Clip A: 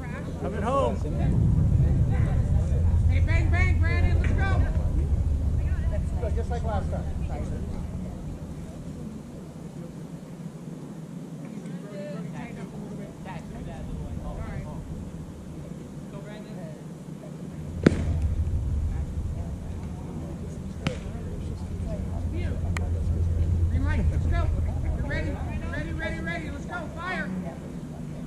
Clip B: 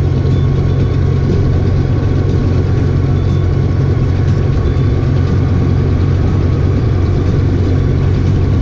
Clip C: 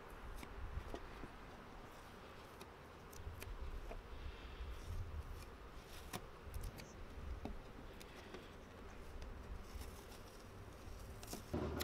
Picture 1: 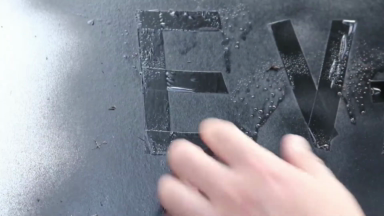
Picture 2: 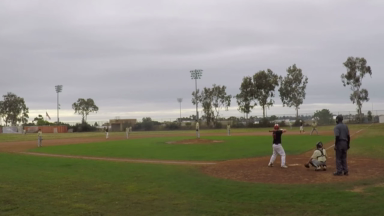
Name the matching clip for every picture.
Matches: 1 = C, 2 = A